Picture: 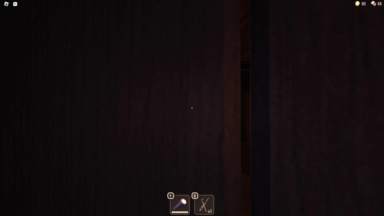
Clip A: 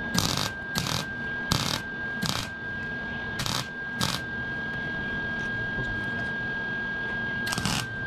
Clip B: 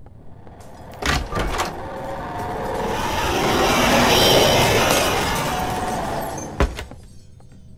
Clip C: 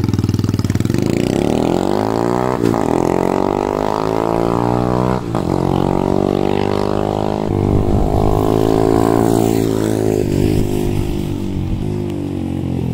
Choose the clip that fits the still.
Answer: B